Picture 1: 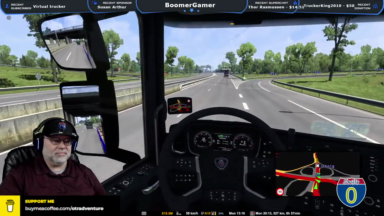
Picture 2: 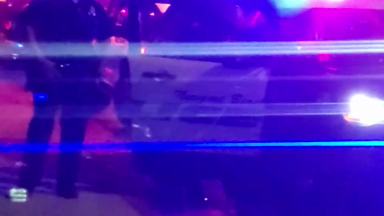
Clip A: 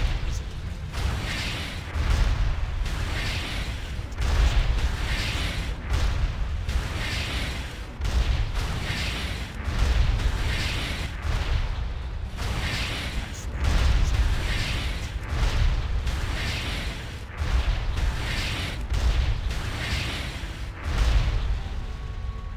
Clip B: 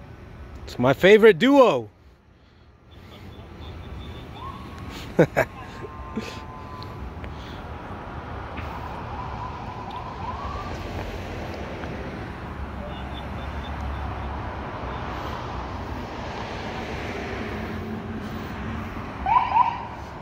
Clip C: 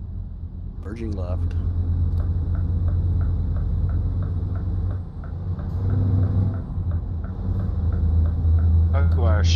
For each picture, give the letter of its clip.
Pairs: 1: C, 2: B